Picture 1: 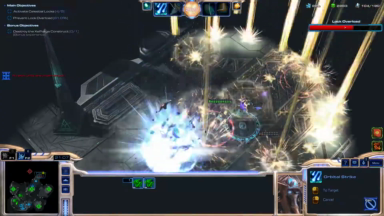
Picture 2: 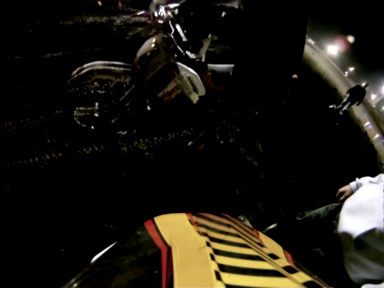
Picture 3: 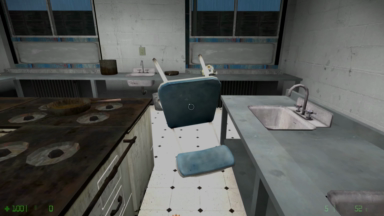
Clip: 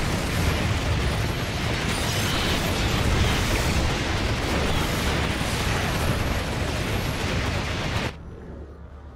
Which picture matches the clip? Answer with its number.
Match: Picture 1